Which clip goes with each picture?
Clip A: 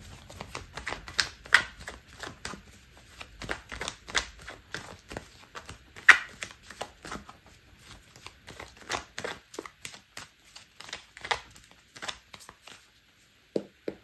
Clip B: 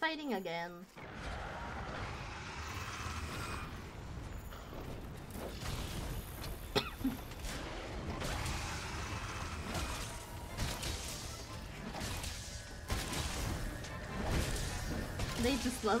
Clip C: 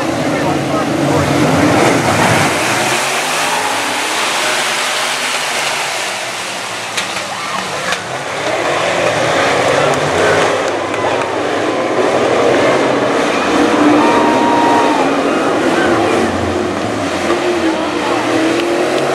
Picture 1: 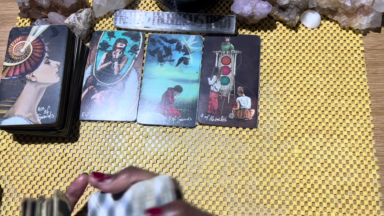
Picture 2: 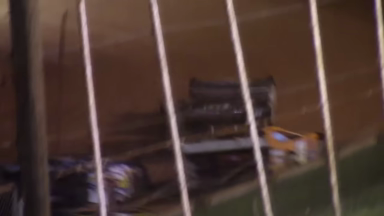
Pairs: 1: A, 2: C